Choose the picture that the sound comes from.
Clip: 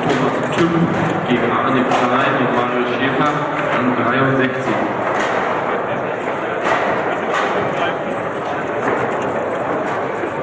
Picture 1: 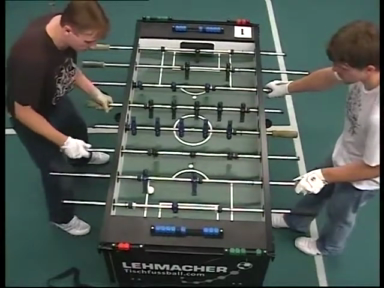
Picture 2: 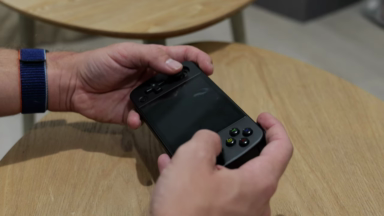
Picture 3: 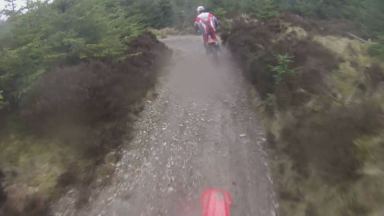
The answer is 1